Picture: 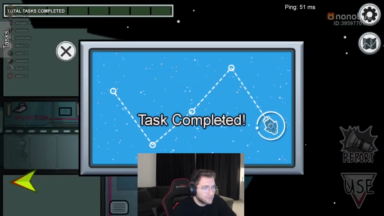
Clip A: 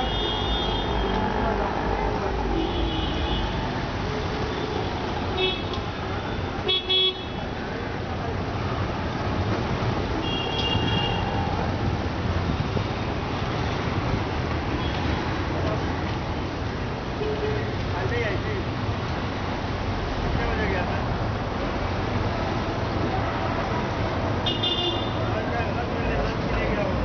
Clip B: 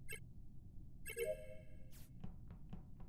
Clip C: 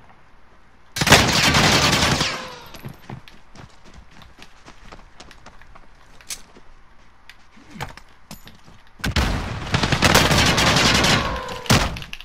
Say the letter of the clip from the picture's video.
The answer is B